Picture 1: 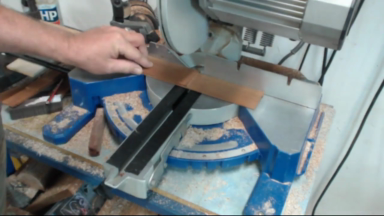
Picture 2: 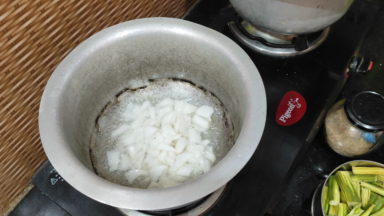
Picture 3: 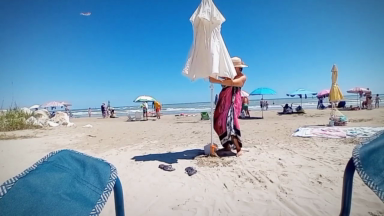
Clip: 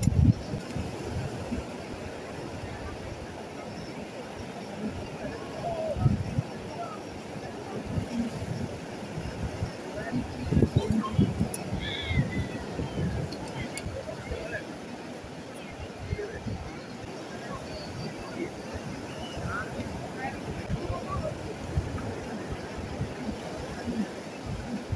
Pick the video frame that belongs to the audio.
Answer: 3